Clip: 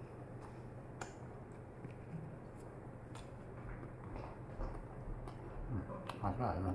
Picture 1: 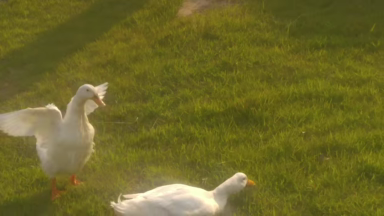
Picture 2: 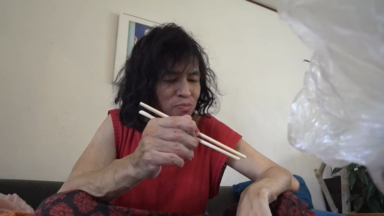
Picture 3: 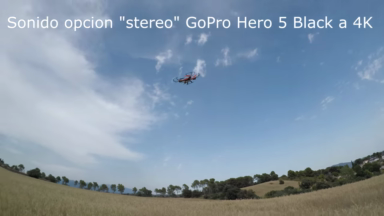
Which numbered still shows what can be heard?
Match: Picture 2